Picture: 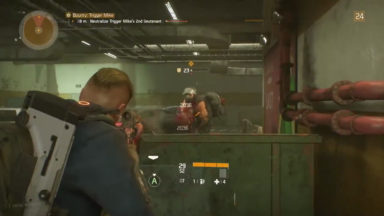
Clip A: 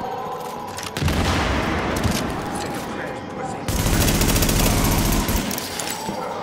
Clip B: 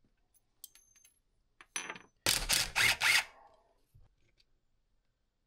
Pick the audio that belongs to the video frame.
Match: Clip A